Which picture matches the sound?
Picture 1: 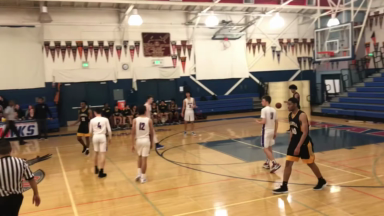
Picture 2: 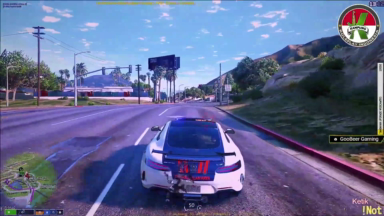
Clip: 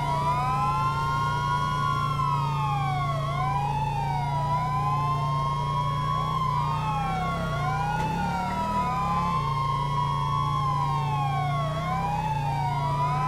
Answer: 2